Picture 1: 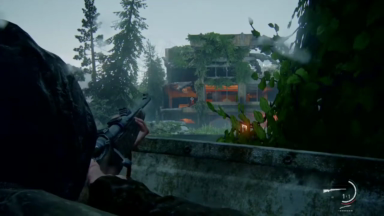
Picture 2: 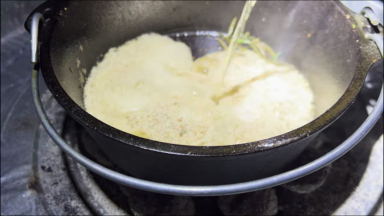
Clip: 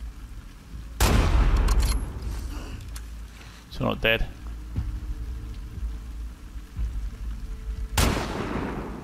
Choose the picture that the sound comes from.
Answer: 1